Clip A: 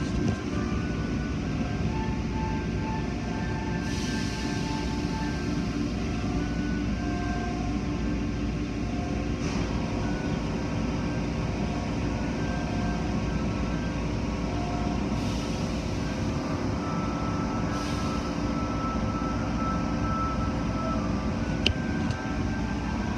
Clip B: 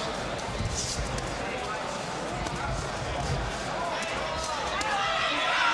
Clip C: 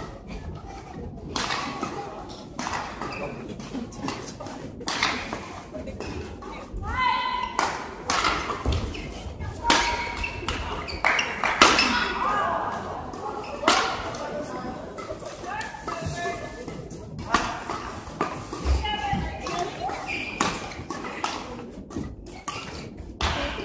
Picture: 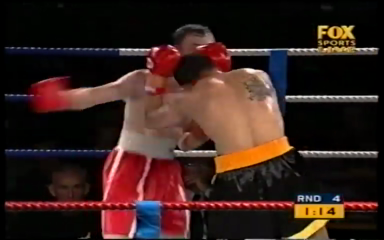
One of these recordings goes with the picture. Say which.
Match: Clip B